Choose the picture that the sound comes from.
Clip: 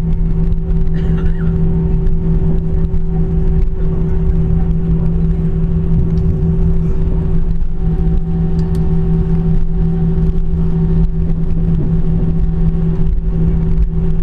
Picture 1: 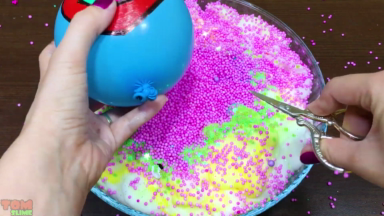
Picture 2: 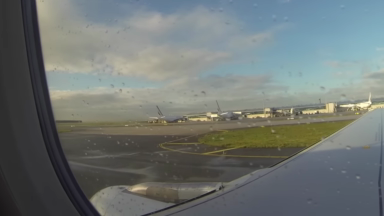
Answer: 2